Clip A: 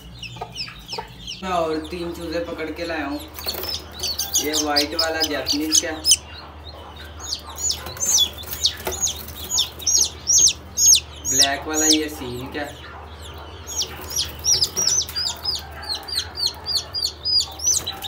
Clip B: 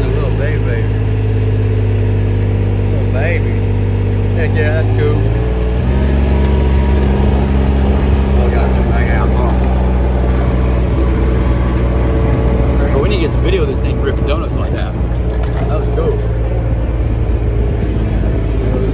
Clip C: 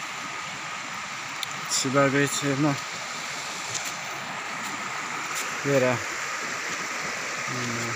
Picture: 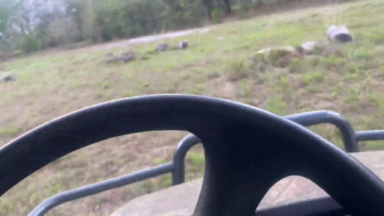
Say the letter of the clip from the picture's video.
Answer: B